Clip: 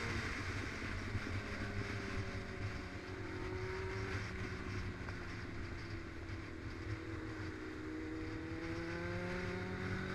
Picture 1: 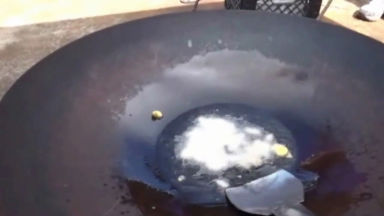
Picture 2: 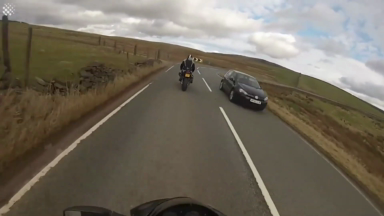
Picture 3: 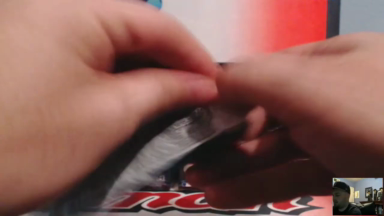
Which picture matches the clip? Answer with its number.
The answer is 2